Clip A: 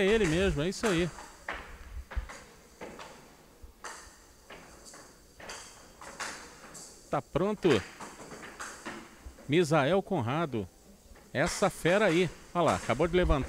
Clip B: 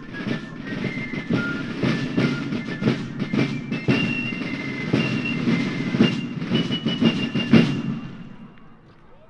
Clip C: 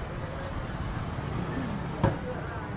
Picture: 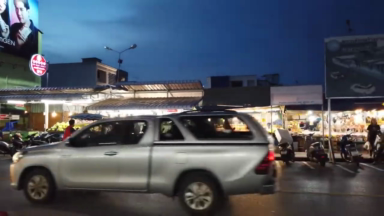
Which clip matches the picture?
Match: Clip C